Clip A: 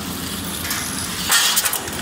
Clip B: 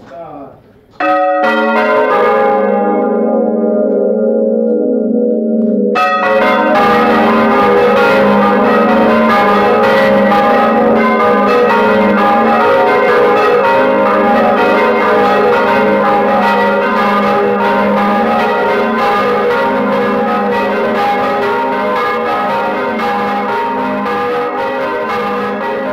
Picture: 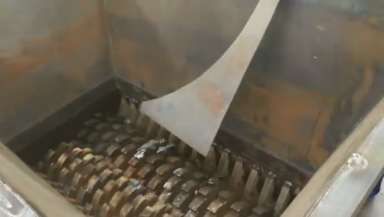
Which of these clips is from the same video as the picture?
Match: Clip A